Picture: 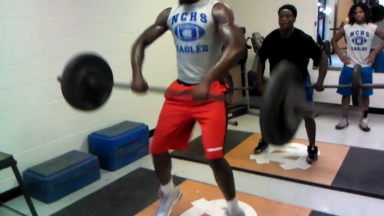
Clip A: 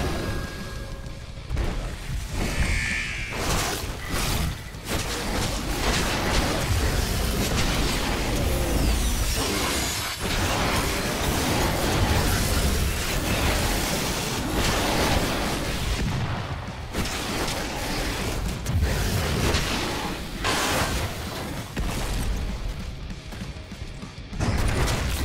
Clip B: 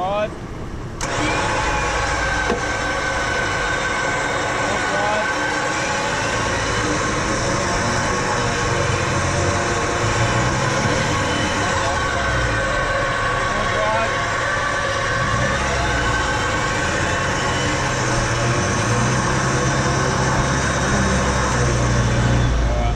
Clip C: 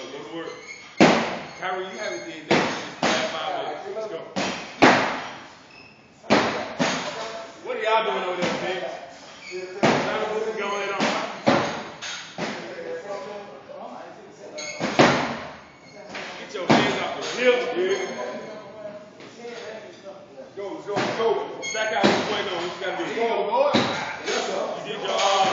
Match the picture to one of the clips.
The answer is C